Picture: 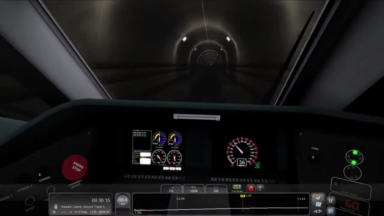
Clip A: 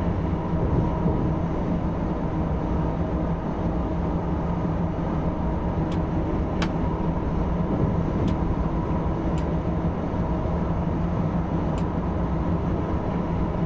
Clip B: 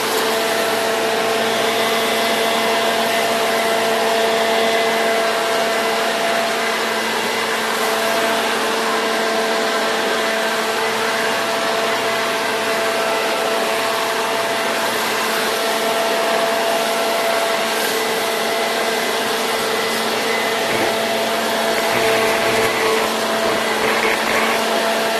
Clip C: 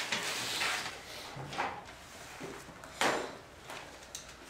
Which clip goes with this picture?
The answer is A